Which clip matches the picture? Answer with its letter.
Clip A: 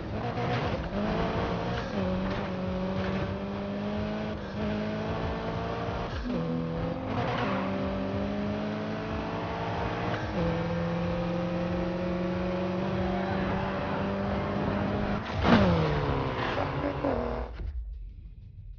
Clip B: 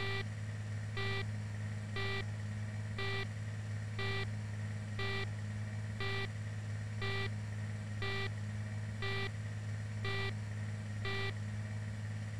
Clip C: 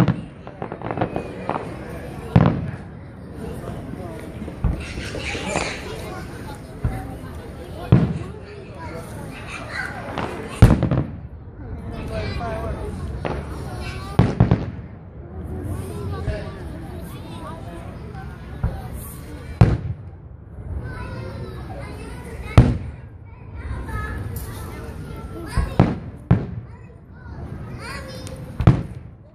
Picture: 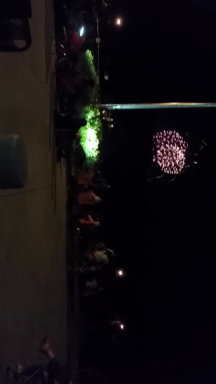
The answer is C